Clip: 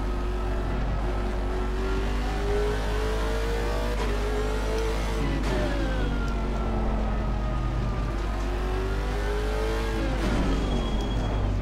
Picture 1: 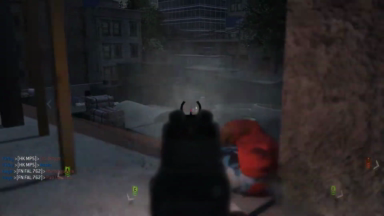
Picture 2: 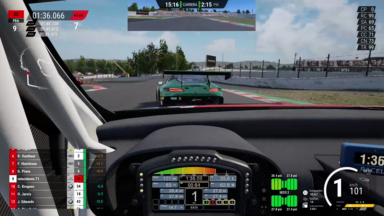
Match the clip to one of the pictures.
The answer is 2